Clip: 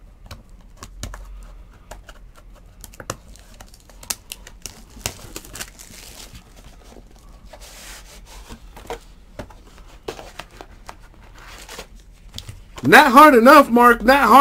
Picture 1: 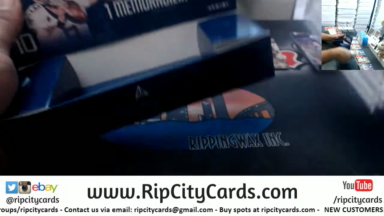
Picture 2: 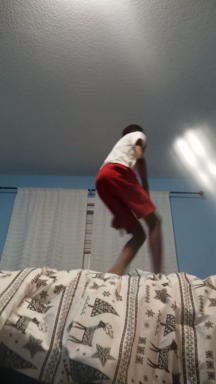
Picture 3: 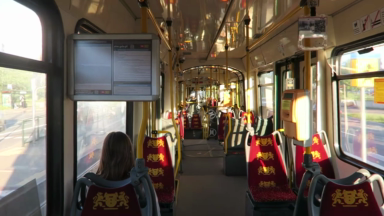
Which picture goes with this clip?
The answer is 1